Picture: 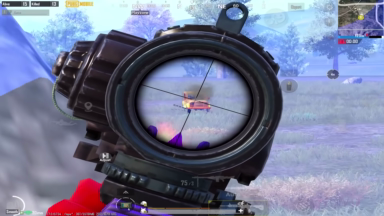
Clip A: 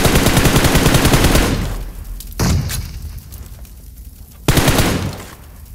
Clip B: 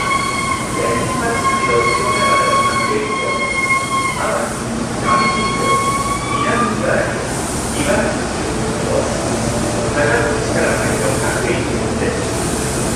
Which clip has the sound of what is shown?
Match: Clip A